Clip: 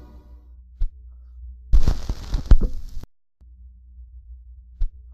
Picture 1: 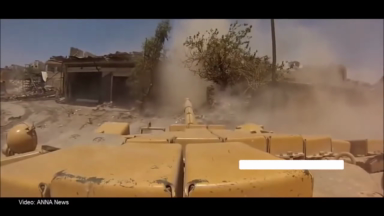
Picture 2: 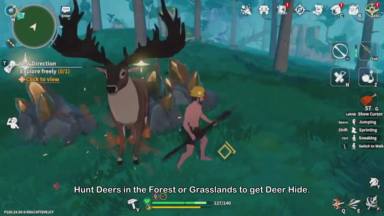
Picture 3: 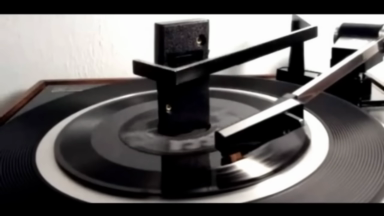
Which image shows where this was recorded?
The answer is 3